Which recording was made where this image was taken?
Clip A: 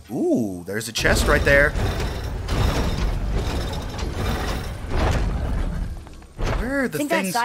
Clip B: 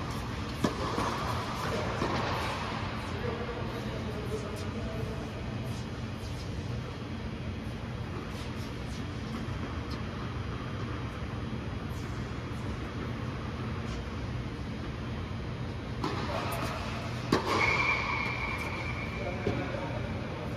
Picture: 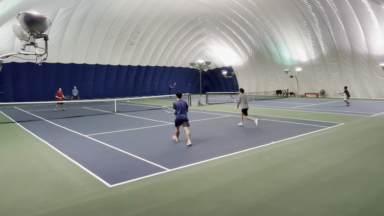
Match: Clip B